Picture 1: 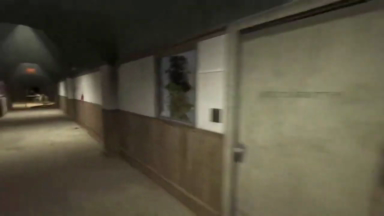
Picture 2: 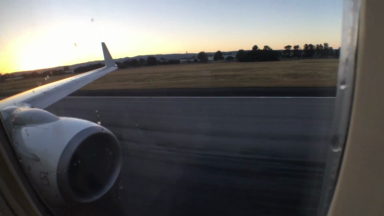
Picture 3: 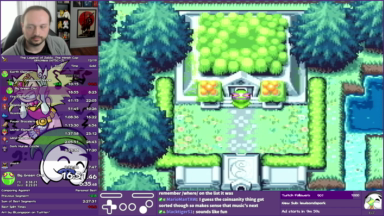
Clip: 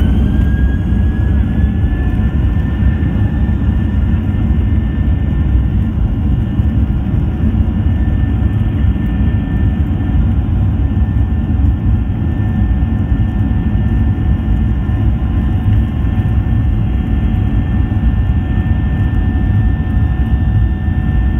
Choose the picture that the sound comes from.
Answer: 2